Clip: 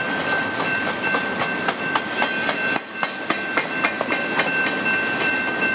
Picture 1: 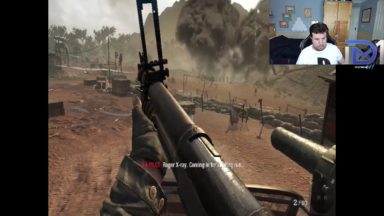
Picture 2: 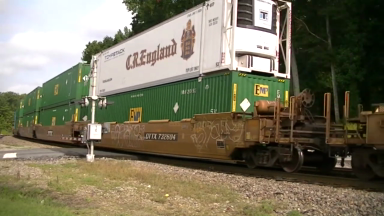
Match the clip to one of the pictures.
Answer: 2